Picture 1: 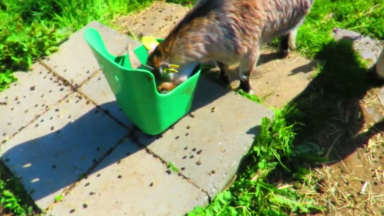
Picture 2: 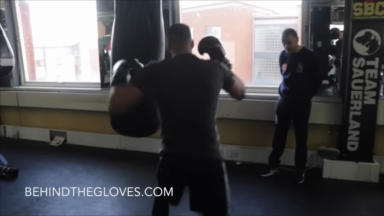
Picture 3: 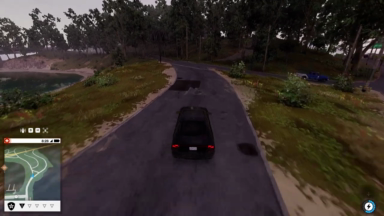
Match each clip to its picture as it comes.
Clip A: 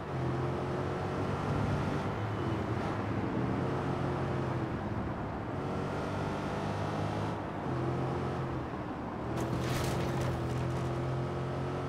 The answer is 3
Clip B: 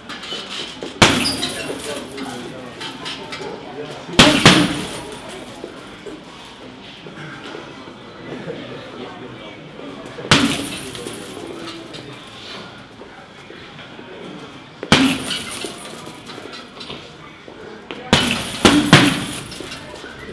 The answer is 2